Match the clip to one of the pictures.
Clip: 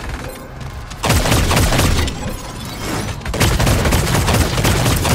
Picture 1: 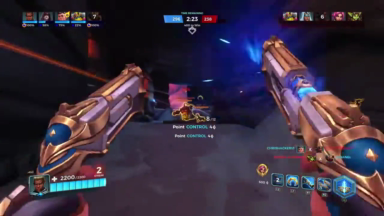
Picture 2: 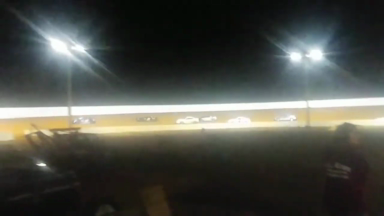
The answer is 1